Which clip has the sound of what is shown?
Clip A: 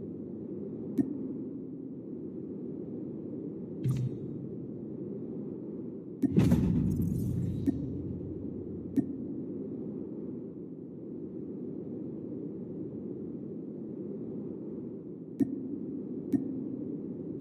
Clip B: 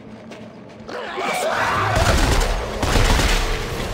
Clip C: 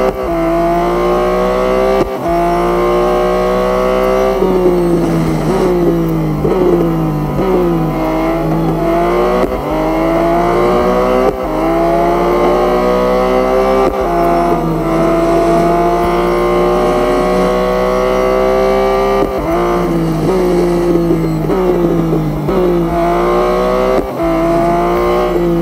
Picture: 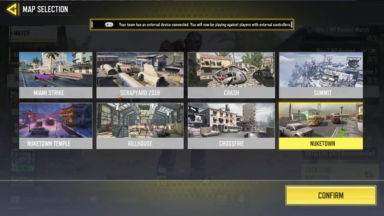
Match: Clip A